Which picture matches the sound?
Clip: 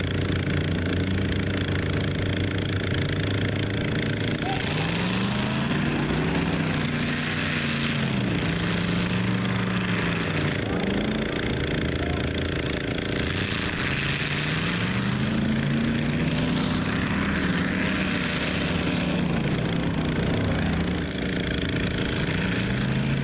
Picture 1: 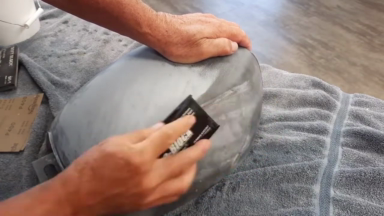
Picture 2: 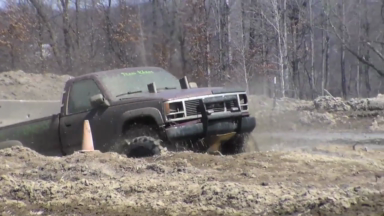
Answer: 2